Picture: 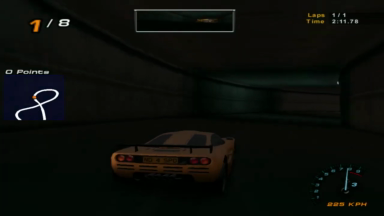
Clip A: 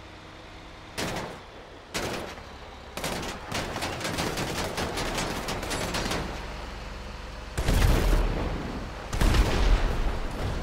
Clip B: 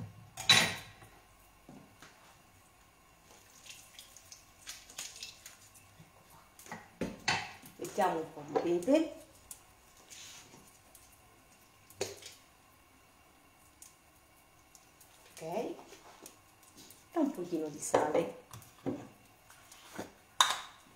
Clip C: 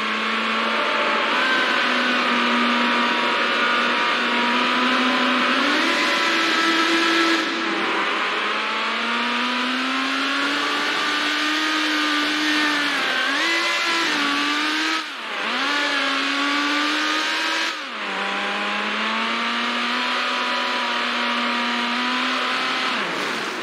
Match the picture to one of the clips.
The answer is C